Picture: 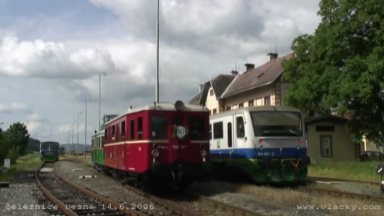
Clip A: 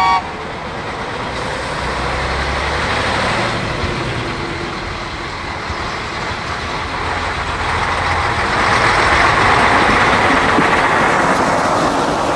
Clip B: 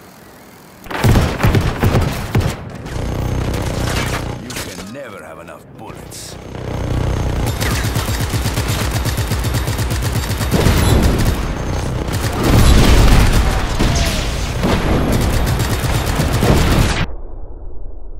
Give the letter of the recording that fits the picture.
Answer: A